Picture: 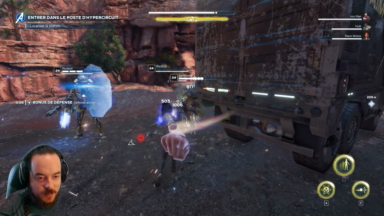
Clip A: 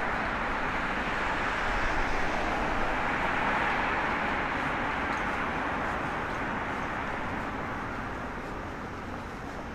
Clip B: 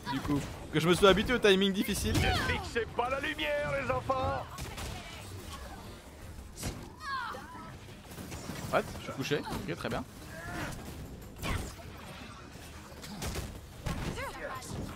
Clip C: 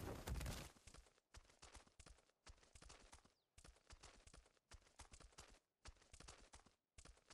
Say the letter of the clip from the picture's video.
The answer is B